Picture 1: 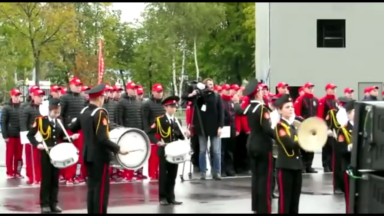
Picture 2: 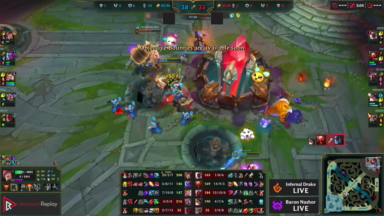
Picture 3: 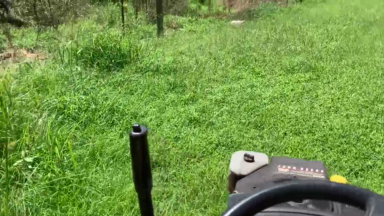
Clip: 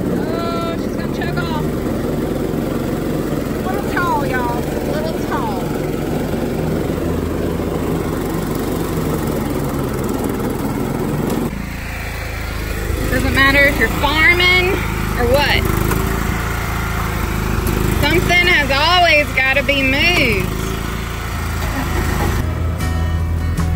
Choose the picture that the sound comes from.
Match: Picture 3